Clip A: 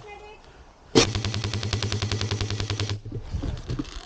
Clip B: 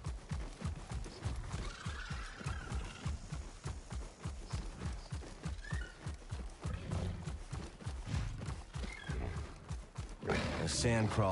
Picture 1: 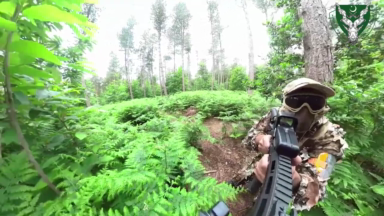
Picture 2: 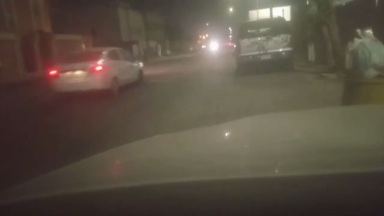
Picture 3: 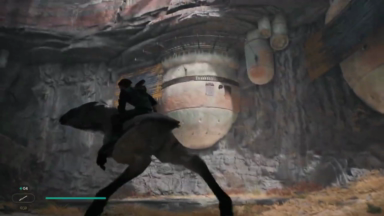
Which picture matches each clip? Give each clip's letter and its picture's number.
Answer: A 1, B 3